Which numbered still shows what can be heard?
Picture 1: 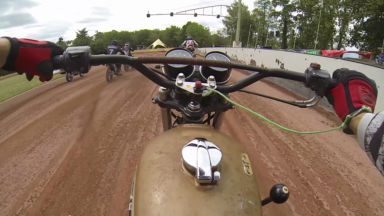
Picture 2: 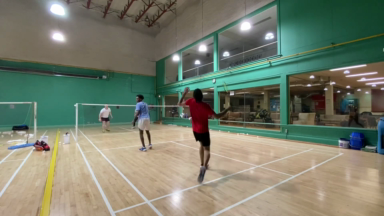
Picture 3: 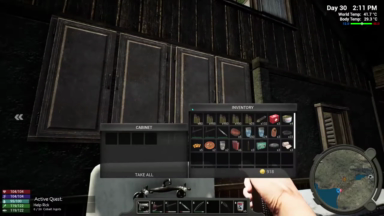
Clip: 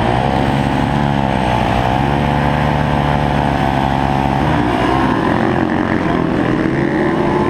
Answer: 1